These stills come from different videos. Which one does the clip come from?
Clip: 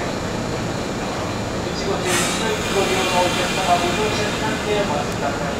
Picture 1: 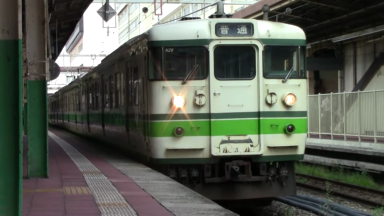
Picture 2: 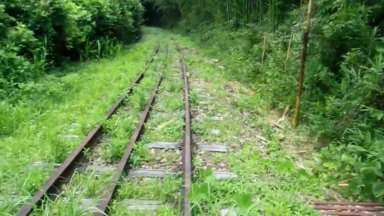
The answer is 1